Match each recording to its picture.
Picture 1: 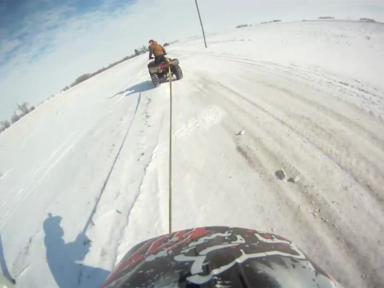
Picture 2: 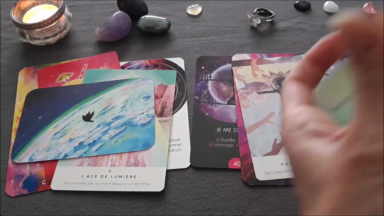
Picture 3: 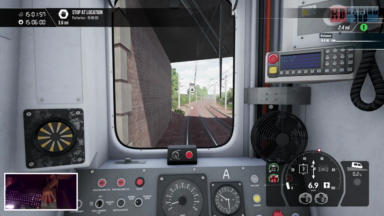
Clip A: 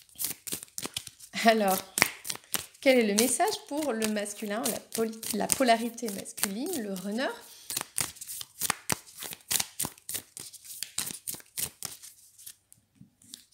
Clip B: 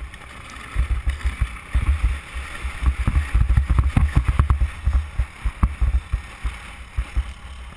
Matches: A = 2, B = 1